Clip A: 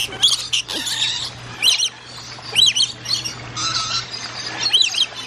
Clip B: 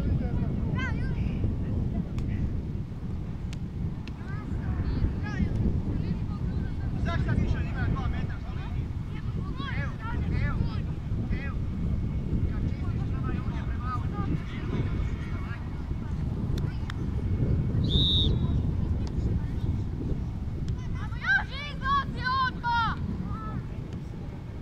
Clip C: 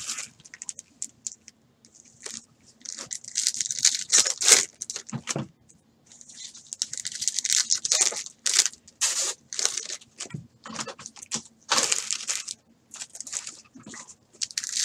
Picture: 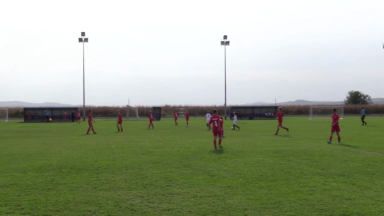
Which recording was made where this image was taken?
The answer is B